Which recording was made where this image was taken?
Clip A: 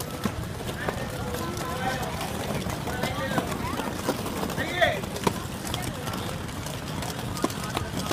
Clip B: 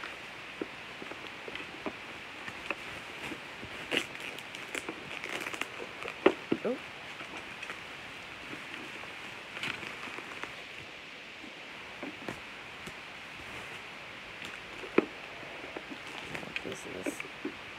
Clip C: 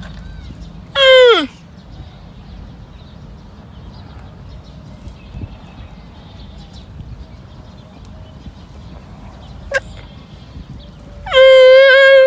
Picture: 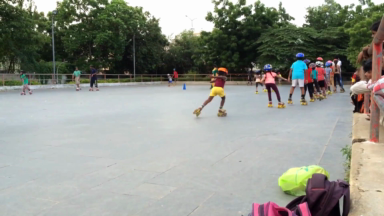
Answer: A